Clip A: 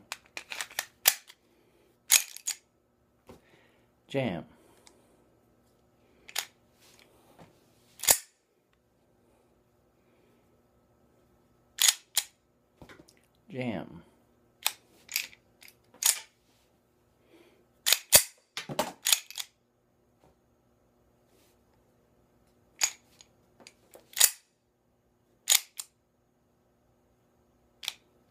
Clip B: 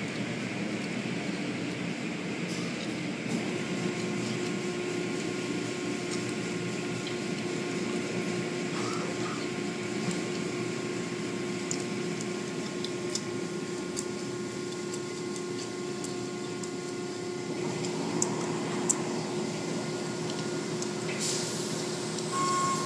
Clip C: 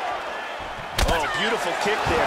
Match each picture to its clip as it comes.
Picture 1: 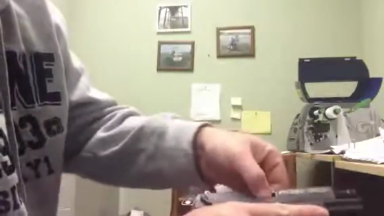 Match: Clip A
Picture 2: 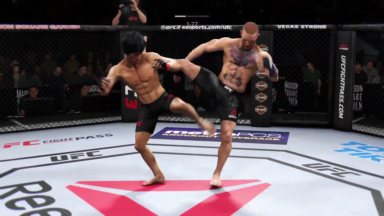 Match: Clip C